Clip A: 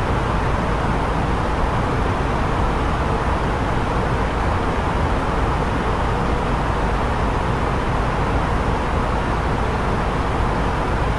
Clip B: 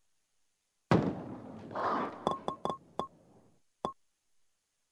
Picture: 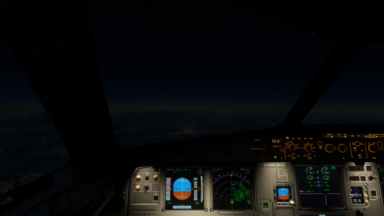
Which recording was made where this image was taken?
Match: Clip A